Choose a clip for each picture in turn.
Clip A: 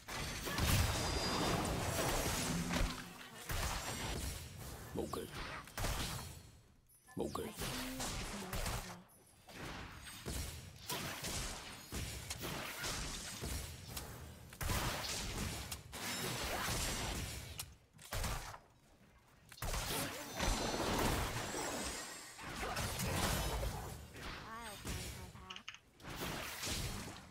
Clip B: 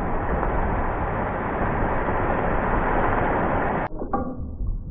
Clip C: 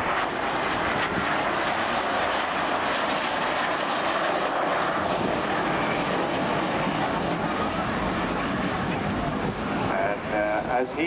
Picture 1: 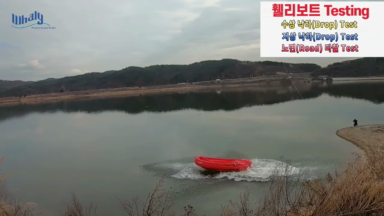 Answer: B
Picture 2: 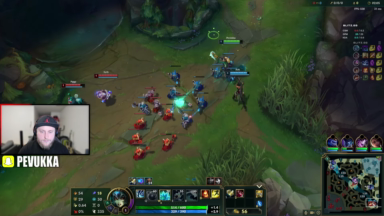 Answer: A